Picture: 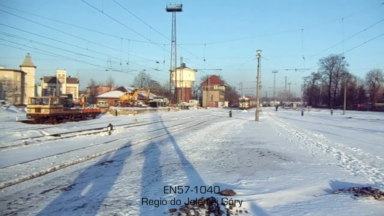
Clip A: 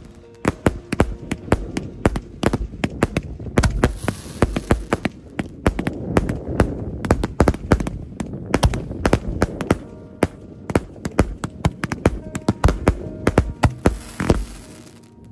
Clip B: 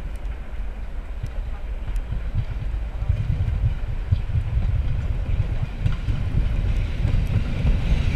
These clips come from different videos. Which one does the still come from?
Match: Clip B